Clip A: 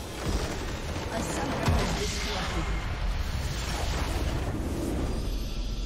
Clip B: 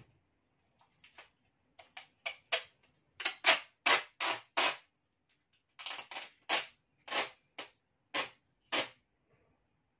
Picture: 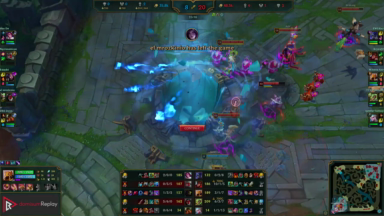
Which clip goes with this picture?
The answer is A